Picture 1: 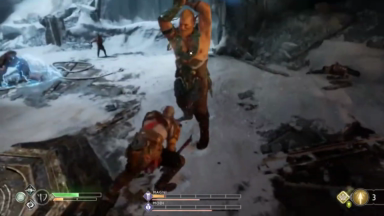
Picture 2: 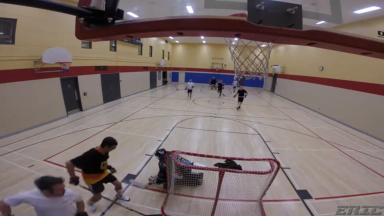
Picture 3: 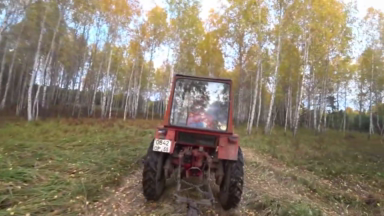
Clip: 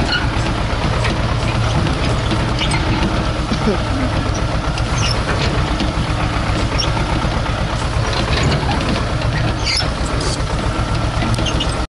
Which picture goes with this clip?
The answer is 3